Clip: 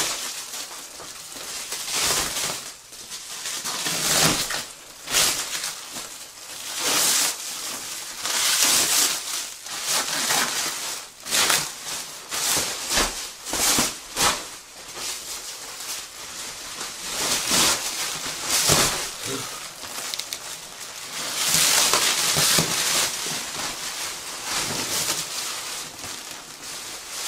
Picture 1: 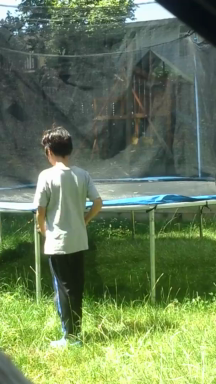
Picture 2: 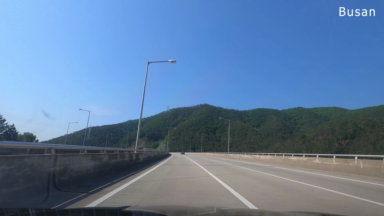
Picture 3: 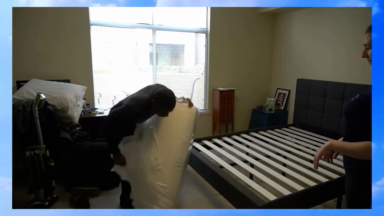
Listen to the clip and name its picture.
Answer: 3